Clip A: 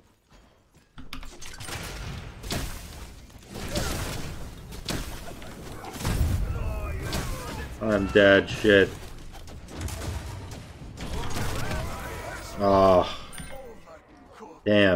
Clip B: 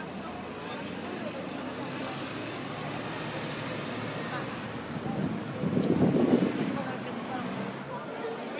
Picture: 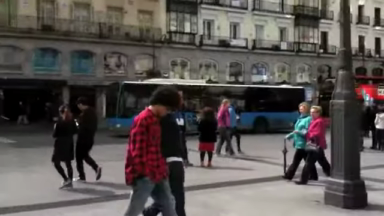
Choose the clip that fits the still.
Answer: B